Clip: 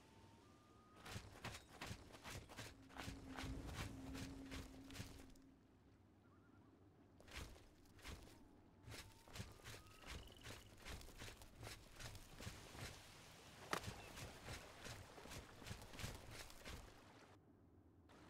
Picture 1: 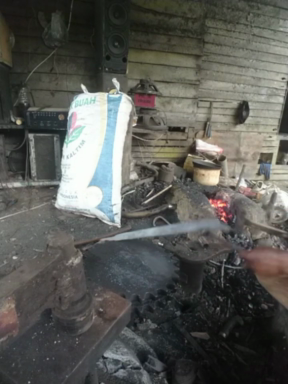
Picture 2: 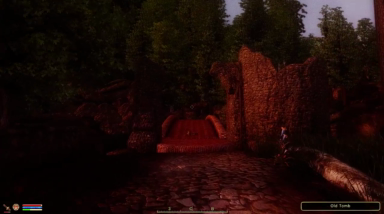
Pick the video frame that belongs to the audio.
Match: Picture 2